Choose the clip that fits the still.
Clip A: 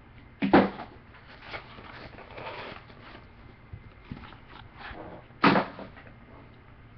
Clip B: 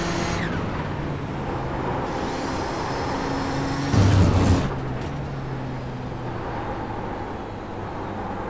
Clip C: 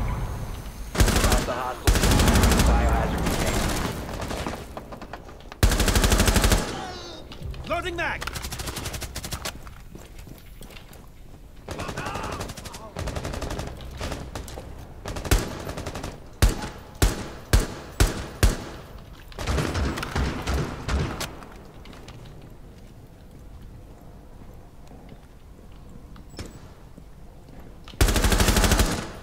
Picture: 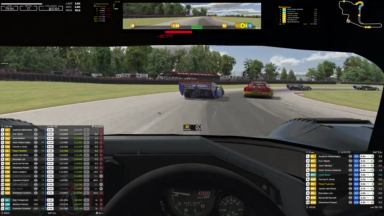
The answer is B